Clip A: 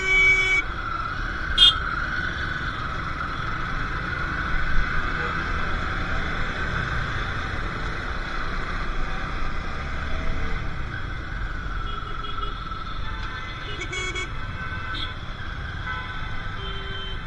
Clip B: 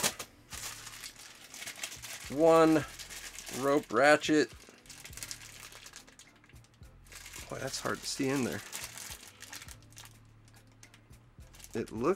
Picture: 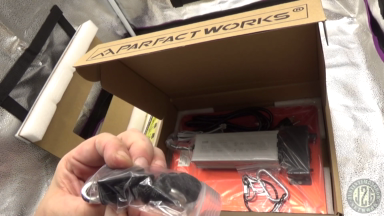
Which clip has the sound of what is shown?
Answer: B